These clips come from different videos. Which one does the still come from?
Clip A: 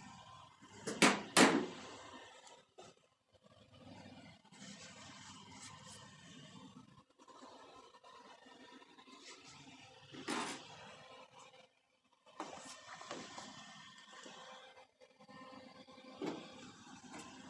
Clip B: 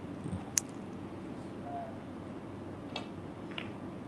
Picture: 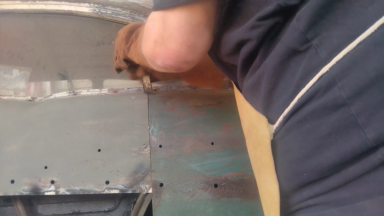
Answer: A